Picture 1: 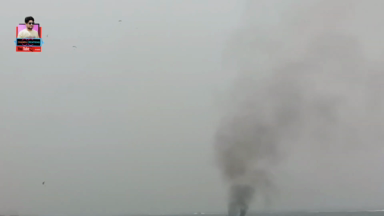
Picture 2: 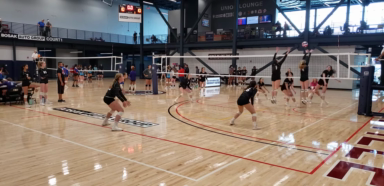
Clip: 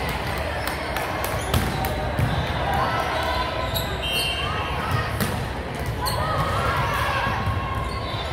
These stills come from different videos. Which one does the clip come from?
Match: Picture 2